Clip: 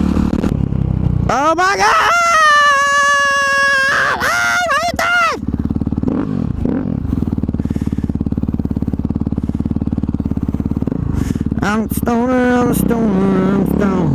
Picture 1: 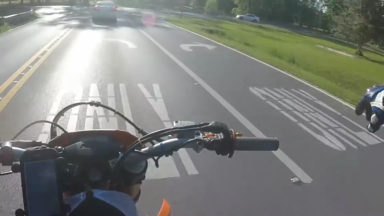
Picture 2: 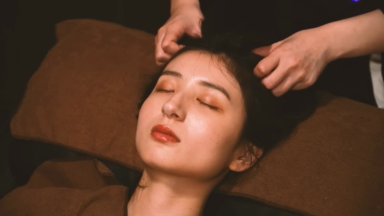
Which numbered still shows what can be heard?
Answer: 1